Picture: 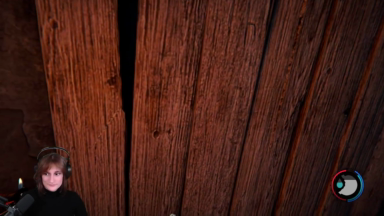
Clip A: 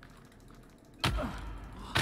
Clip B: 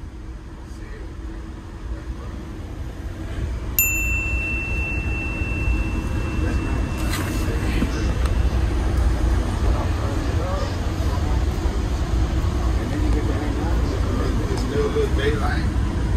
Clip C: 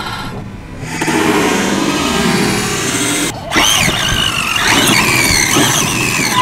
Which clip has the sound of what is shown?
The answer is A